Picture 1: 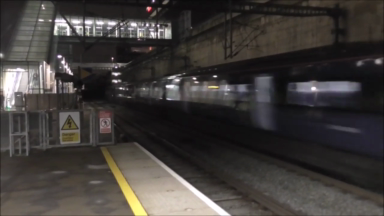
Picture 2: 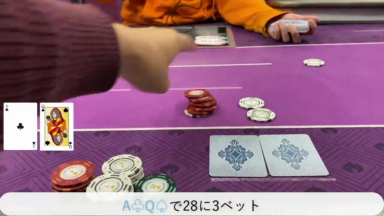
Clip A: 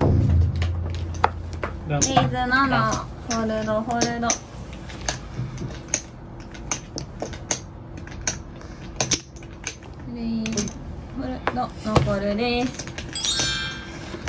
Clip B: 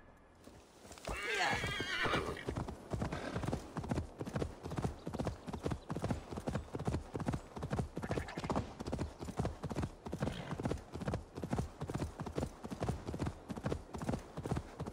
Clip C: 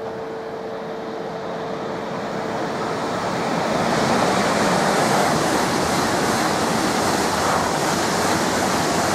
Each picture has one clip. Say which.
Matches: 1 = C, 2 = A